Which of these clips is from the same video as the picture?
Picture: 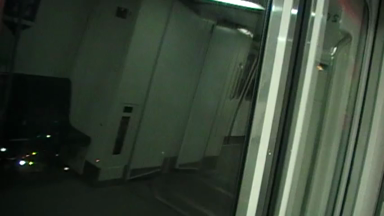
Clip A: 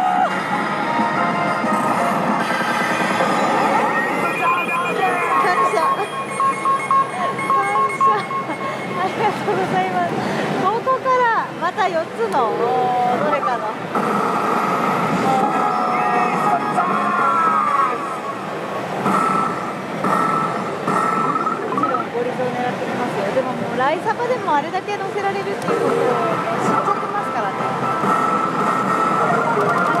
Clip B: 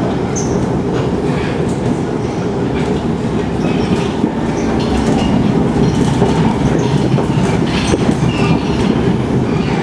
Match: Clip B